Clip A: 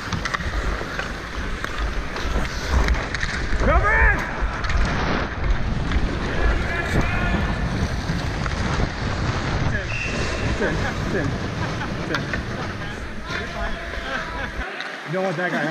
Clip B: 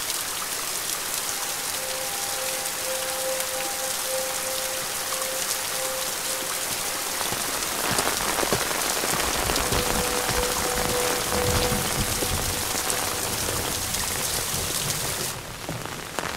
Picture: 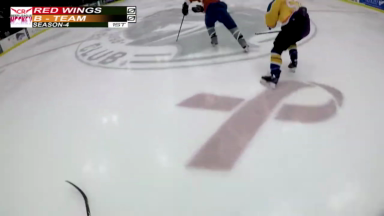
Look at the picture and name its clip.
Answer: A